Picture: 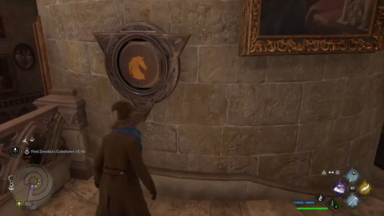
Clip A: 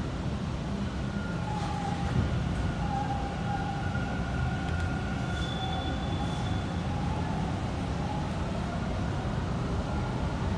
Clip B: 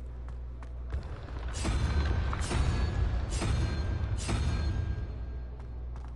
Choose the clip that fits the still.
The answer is B